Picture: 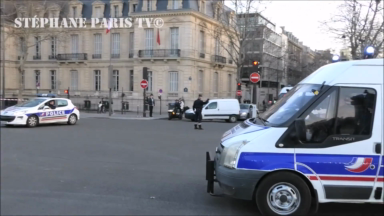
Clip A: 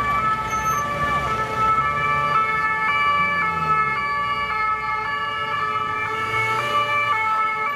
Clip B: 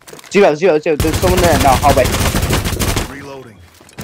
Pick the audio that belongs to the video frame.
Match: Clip A